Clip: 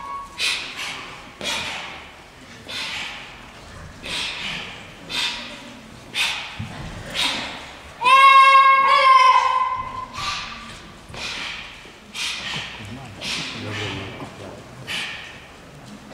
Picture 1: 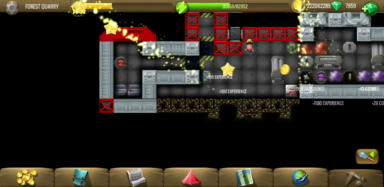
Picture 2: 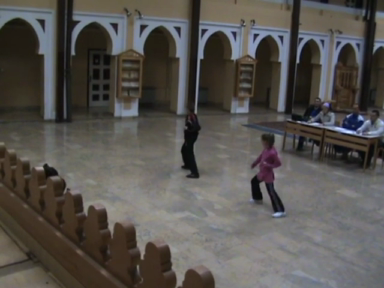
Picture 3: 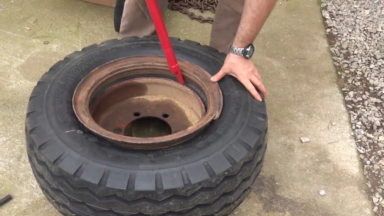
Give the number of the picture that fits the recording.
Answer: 2